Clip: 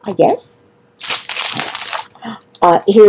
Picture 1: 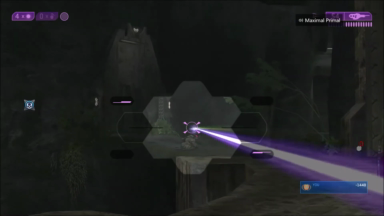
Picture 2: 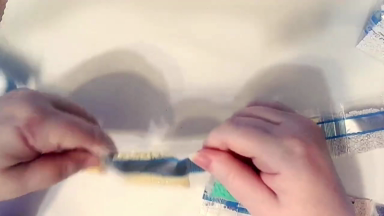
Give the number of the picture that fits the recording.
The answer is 2